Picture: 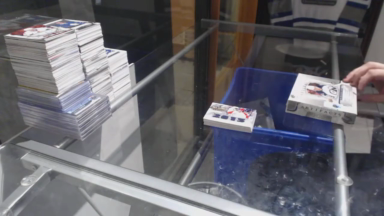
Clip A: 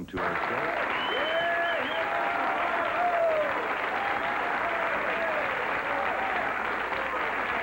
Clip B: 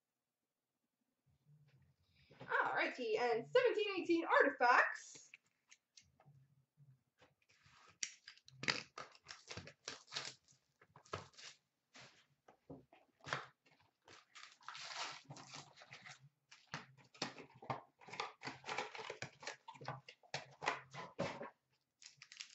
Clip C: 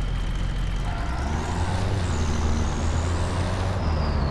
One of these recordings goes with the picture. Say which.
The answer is B